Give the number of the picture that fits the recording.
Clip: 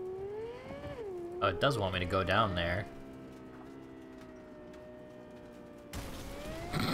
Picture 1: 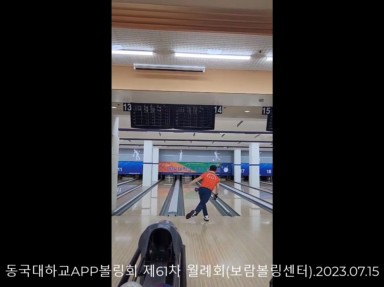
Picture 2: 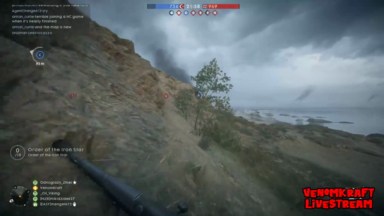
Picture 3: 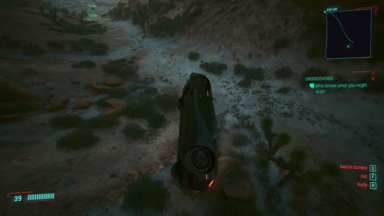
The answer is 3